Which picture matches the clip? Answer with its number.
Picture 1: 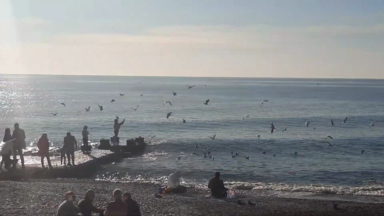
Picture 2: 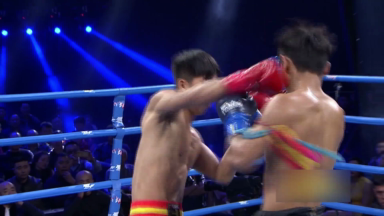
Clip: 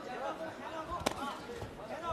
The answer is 2